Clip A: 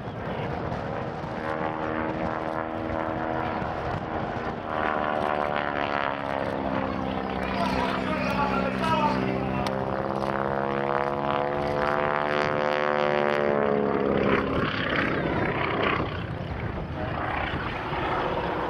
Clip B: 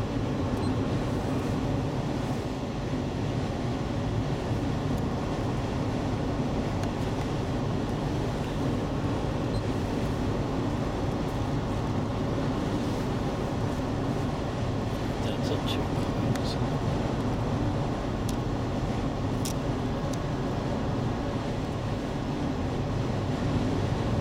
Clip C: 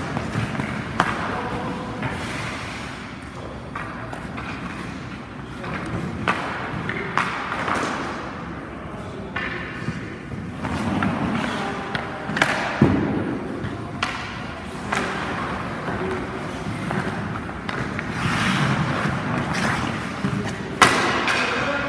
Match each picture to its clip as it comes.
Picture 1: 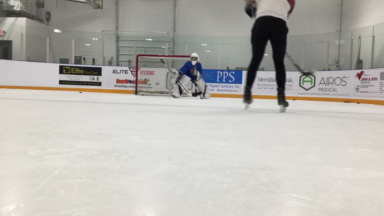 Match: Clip C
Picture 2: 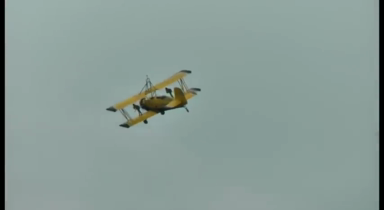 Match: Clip A